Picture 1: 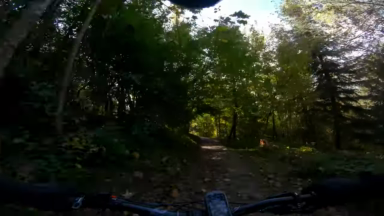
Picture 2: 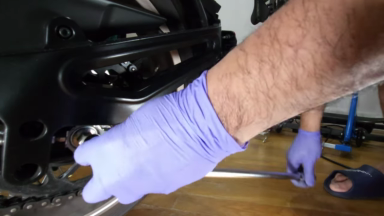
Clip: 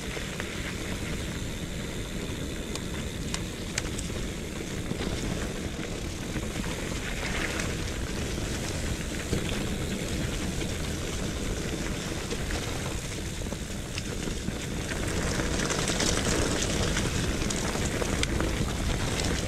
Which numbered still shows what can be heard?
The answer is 1